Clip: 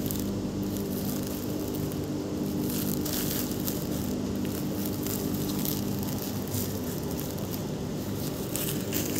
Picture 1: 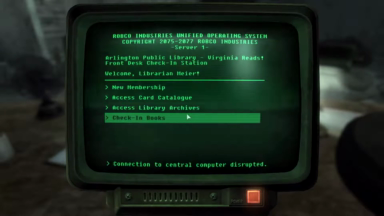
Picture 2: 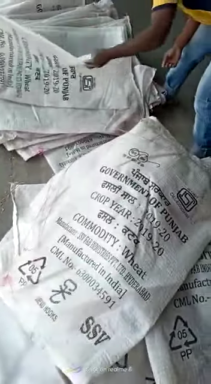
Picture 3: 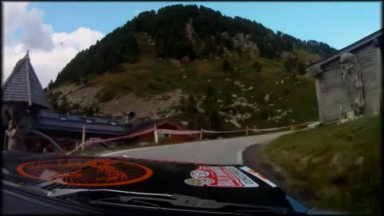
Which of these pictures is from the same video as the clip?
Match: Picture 2